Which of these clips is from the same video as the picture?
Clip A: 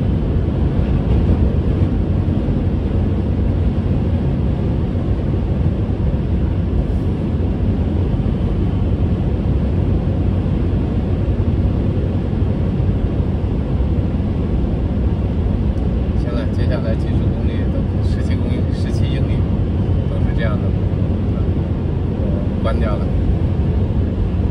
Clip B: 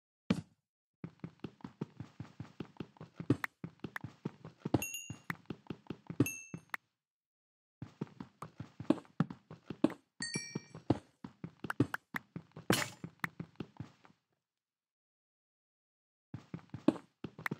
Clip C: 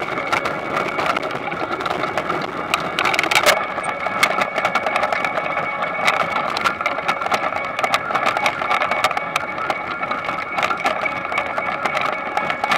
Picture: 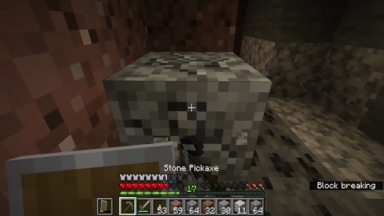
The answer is B